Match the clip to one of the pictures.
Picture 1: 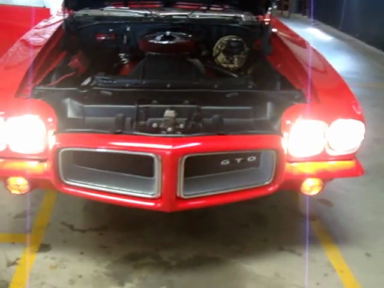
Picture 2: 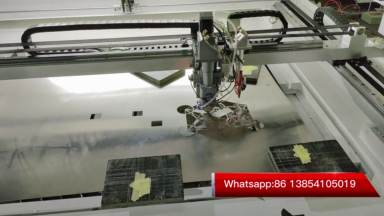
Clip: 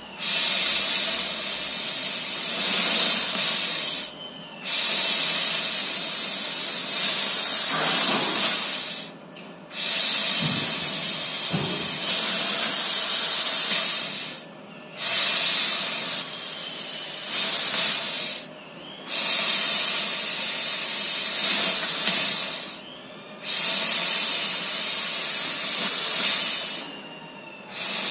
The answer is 2